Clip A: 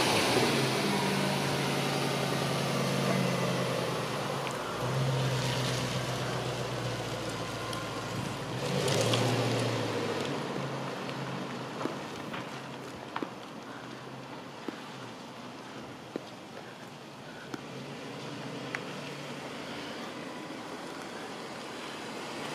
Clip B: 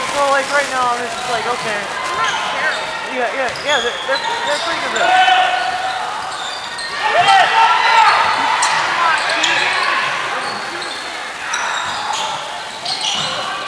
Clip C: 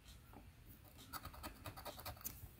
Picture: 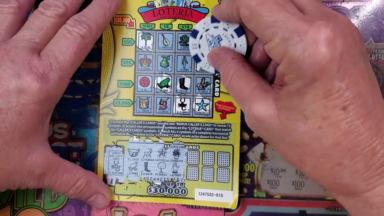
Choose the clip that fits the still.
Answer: C